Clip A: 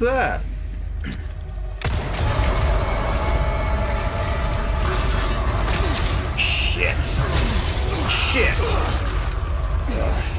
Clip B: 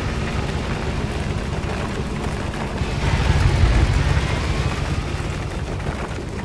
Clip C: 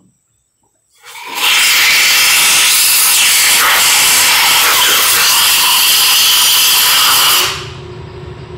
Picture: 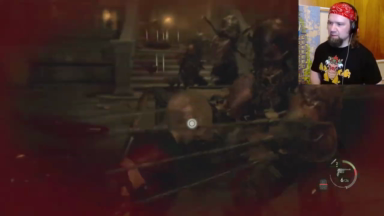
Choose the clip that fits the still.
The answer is A